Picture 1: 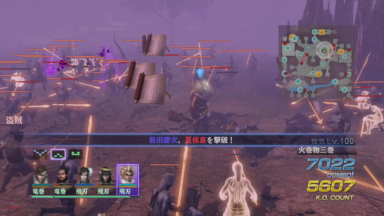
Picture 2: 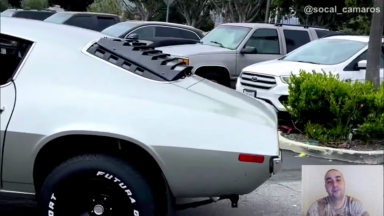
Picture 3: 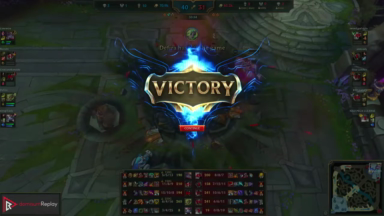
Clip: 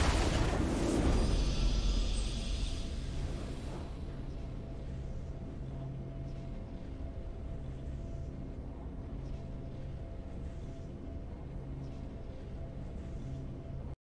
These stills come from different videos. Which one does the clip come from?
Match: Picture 3